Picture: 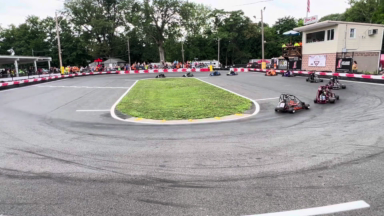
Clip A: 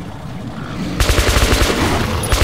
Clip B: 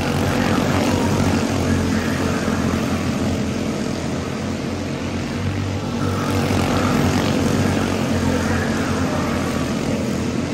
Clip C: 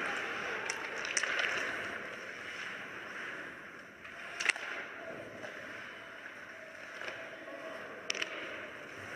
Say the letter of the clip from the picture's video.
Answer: B